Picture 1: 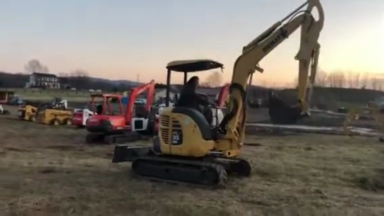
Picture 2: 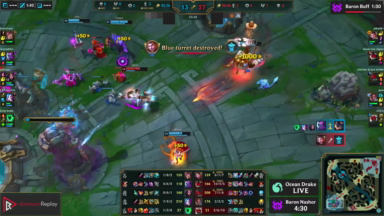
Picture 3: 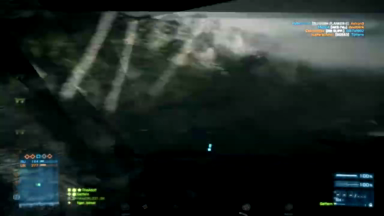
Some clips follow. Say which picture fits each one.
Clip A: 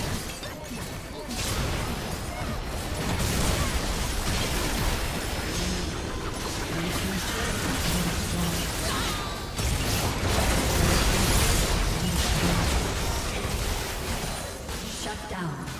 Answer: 2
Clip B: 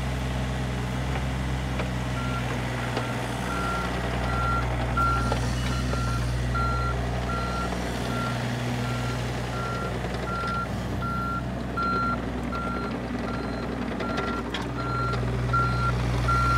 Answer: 1